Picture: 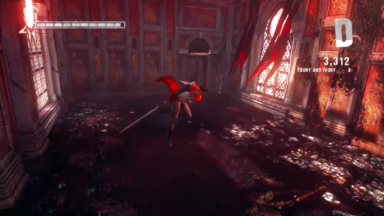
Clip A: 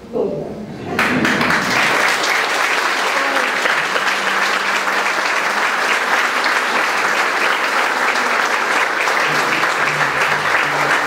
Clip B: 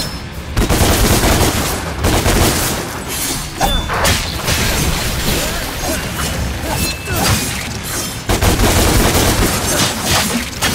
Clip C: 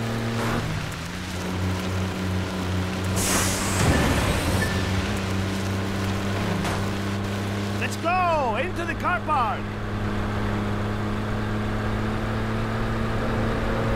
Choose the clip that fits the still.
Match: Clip B